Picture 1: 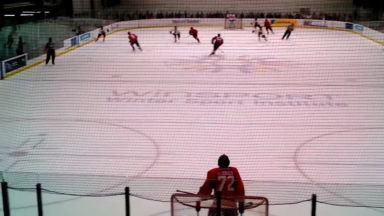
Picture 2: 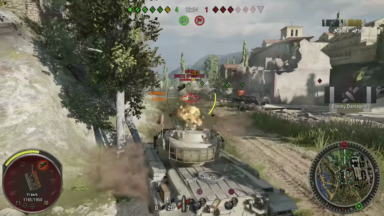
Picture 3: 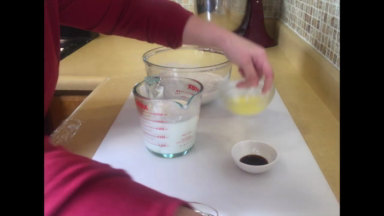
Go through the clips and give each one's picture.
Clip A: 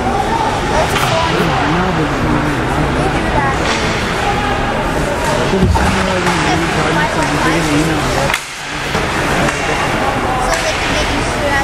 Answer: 1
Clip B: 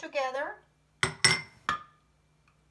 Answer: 3